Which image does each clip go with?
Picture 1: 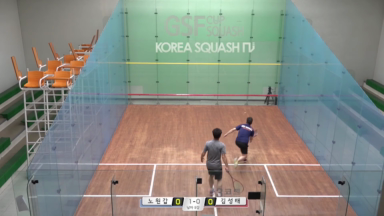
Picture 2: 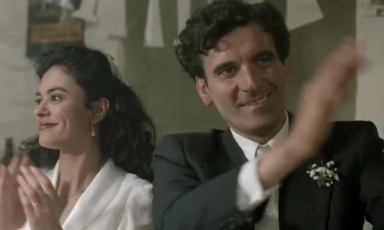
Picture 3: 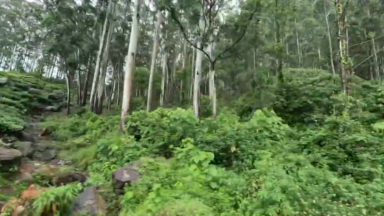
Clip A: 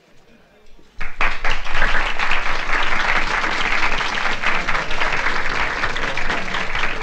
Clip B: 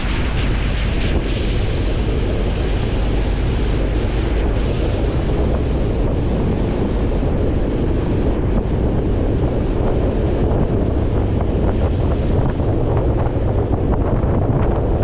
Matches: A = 2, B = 3